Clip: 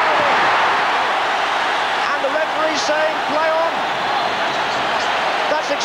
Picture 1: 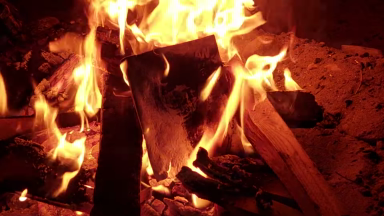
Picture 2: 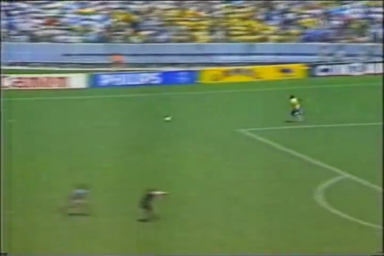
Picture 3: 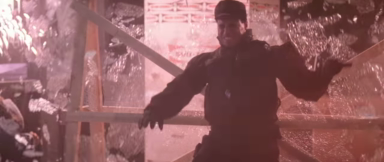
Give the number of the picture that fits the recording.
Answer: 2